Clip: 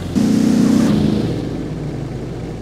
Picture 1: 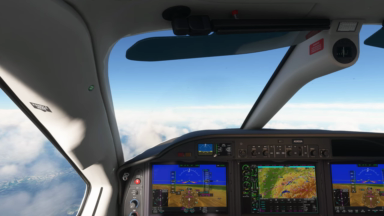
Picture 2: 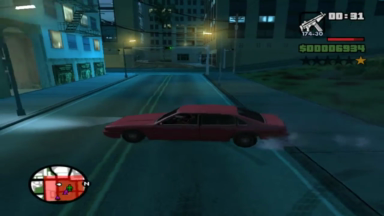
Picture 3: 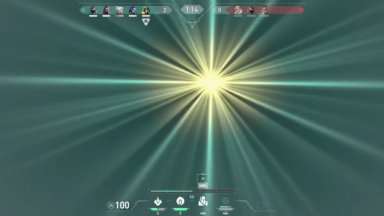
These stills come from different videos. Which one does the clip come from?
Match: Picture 2